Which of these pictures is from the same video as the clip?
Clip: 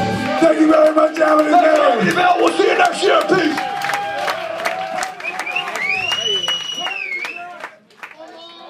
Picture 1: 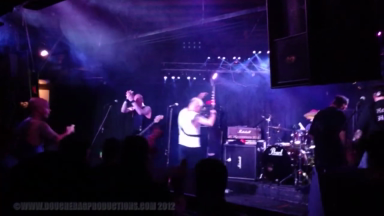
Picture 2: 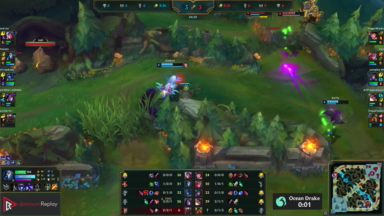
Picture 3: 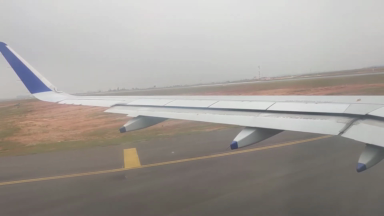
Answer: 1